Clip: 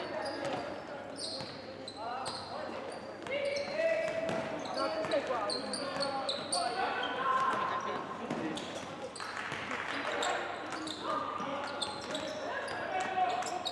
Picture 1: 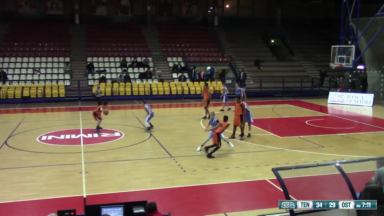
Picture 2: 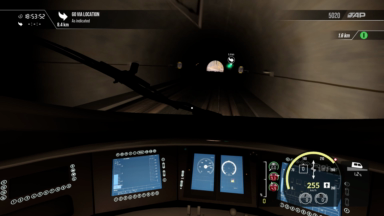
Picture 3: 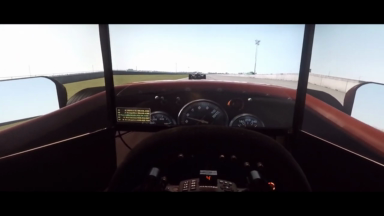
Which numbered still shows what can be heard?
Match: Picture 1